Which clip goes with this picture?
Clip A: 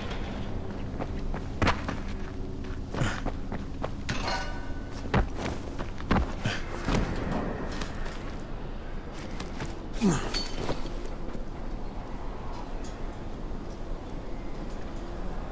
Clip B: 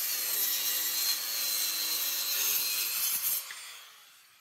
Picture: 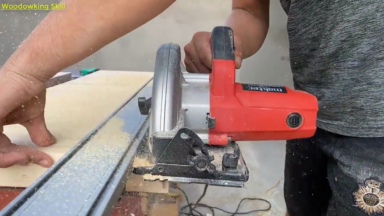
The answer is B